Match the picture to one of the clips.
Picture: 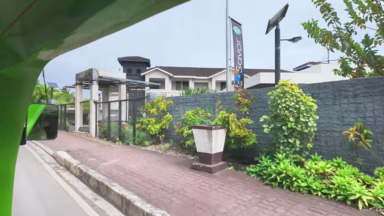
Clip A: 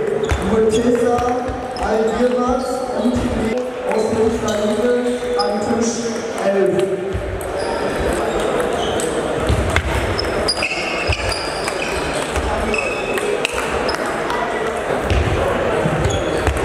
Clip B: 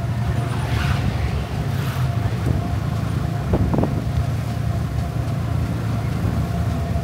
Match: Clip B